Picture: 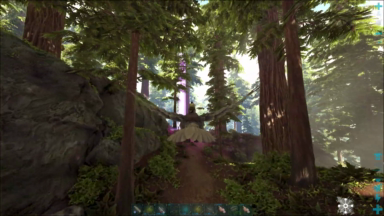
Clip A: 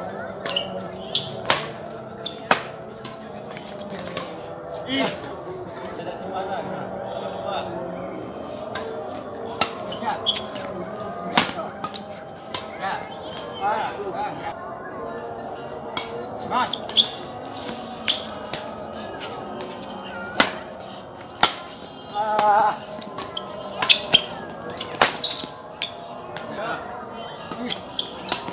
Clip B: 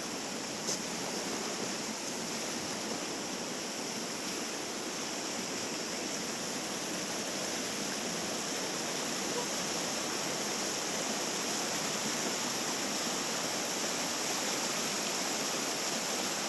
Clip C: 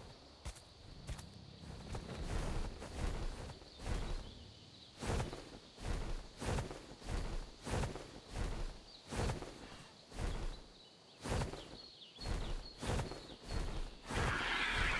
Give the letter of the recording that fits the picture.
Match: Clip C